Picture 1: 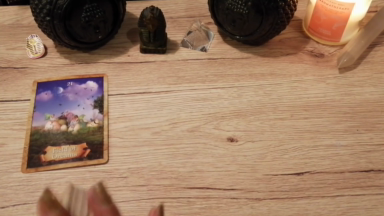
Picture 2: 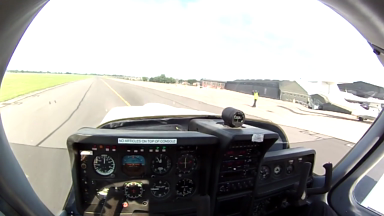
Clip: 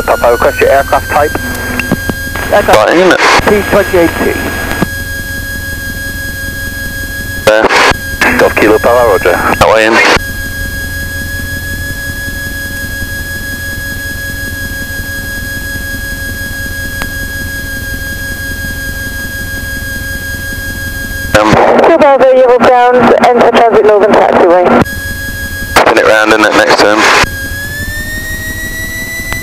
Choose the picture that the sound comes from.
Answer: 2